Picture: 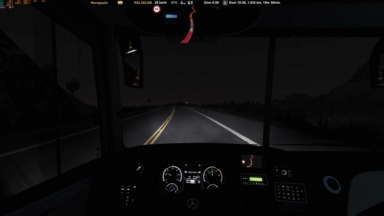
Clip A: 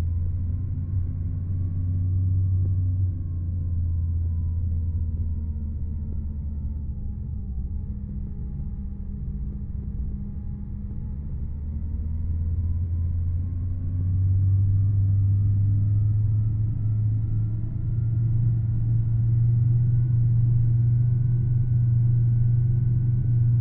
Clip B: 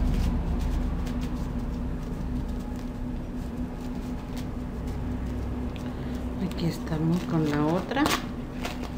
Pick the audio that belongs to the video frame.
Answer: A